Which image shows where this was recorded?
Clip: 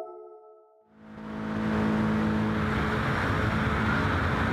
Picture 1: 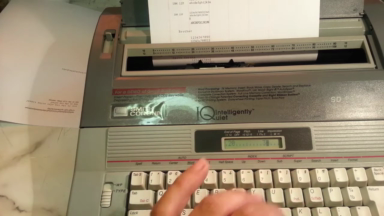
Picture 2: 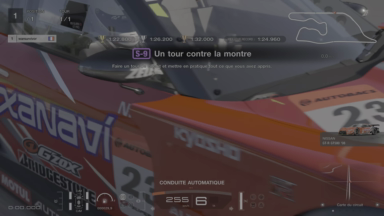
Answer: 2